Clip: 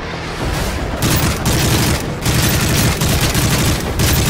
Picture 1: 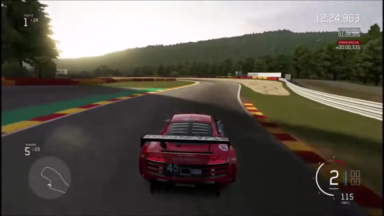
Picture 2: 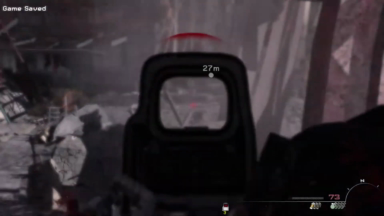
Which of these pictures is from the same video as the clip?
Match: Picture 2